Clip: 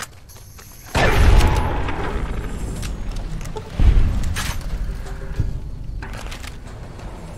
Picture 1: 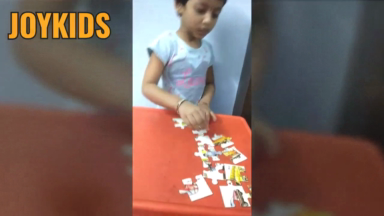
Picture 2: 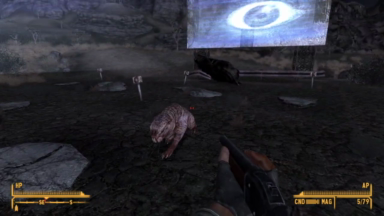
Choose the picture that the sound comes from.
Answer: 2